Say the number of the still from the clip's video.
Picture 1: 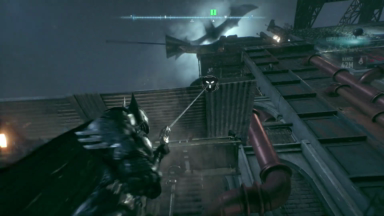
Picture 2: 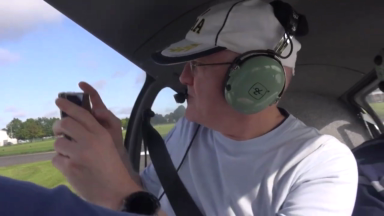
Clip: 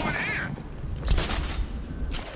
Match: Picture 1